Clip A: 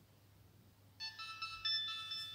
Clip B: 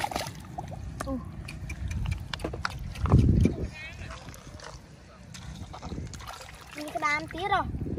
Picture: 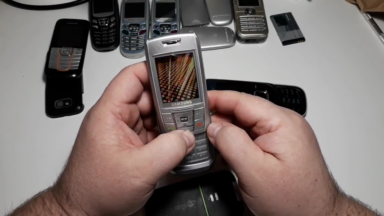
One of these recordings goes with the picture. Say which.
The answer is A